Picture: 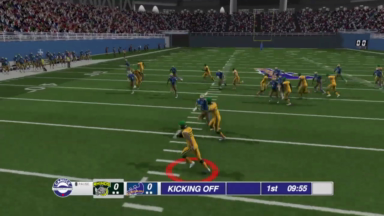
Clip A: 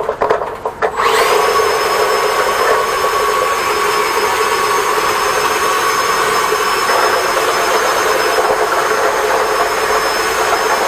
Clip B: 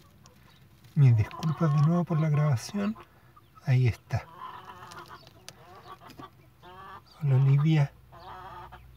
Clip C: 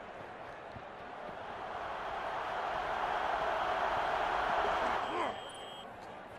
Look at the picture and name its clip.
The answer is C